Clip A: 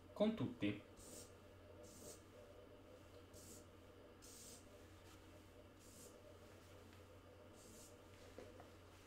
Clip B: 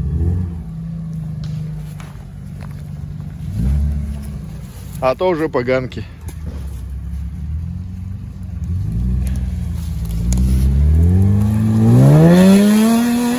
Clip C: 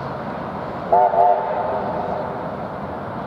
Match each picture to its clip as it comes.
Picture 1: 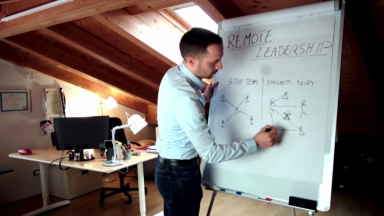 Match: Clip A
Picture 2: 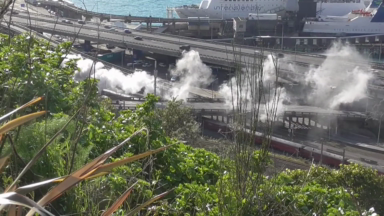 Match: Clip C